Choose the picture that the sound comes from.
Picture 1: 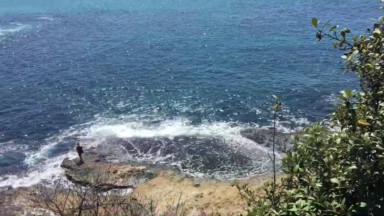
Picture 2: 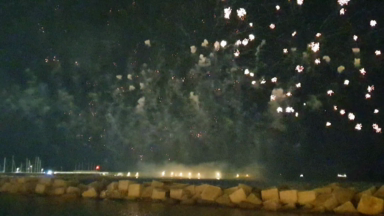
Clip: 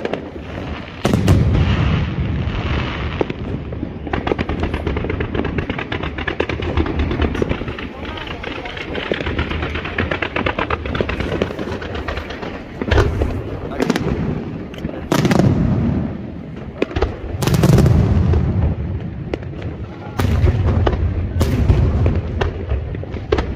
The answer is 2